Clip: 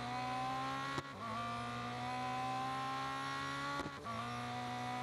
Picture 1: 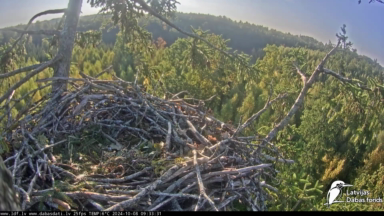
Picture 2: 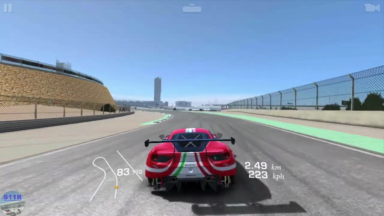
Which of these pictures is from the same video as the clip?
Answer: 2